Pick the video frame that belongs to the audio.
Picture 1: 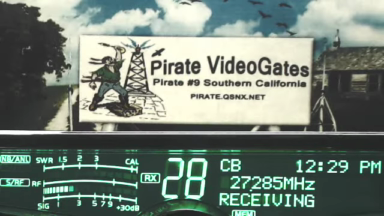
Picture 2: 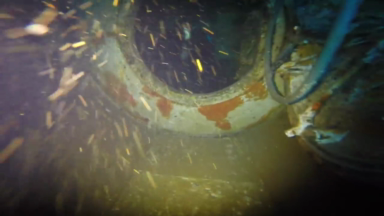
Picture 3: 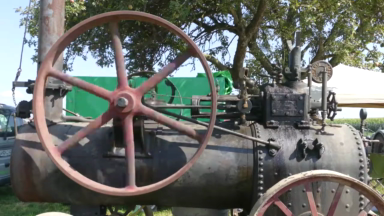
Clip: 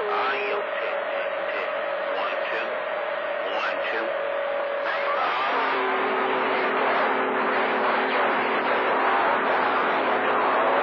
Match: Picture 1